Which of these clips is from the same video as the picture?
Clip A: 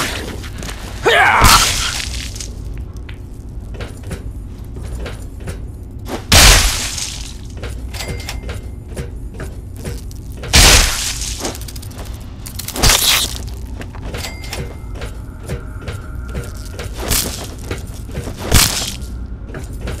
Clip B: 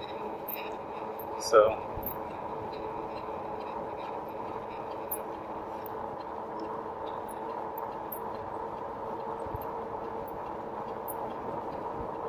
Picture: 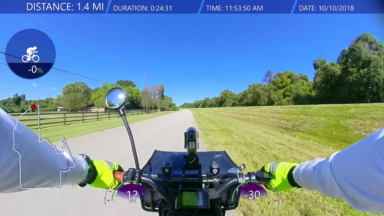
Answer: B